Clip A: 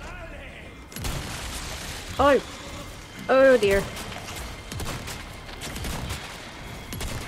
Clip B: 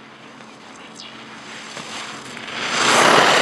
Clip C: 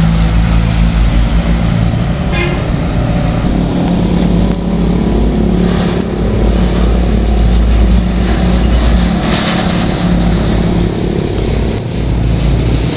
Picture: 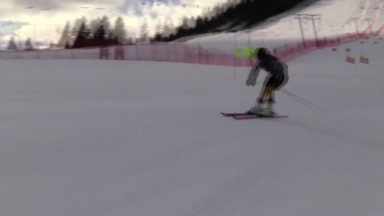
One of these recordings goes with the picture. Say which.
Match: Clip B